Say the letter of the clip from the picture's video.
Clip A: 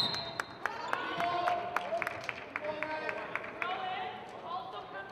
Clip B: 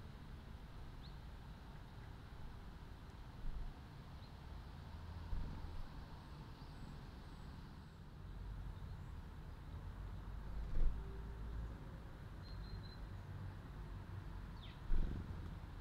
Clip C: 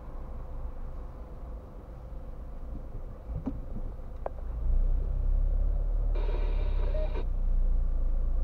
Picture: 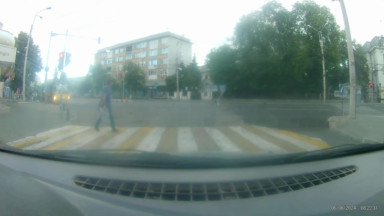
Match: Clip C